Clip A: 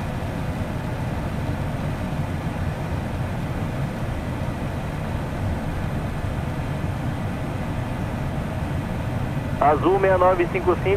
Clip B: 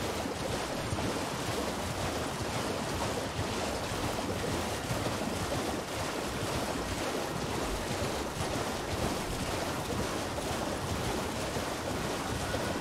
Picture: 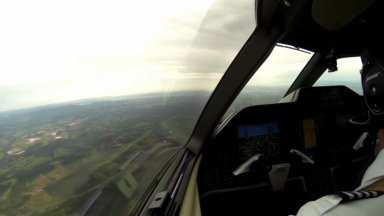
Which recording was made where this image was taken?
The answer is A